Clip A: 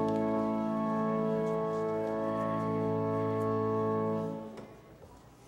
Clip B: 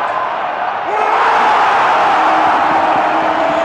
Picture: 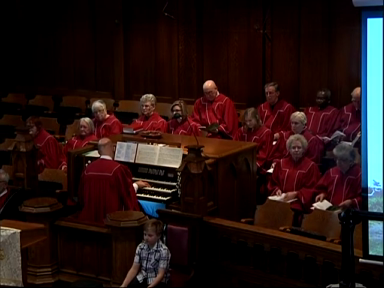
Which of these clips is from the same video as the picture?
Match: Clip A